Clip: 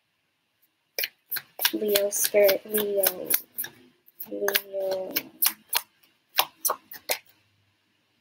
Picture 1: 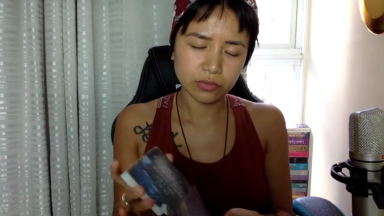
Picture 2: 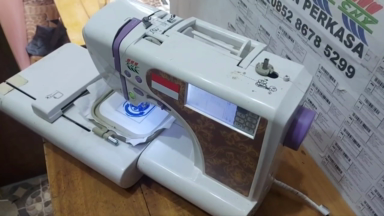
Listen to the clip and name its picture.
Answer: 1